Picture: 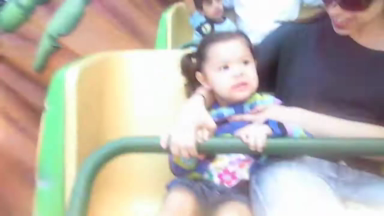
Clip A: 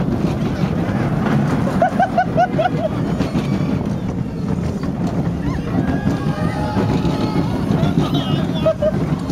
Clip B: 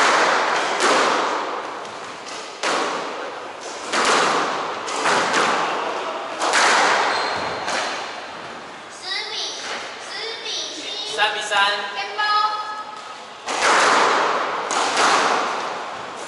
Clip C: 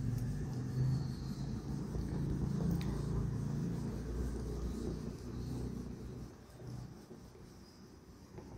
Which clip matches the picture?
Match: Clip A